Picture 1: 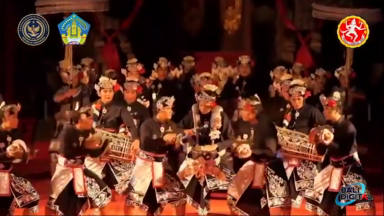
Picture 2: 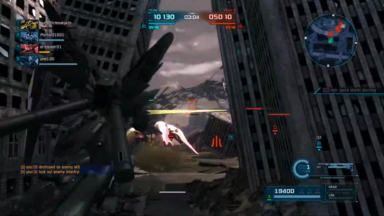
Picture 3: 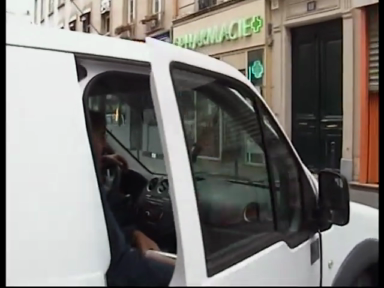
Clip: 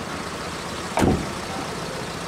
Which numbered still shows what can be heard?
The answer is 3